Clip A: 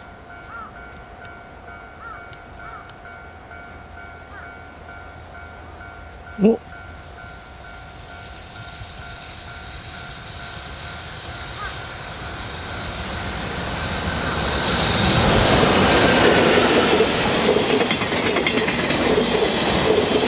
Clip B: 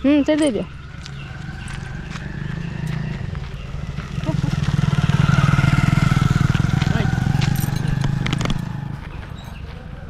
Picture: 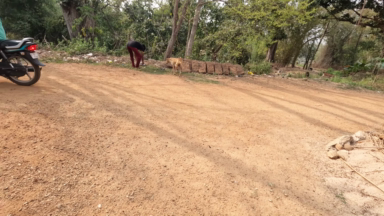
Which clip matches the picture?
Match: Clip B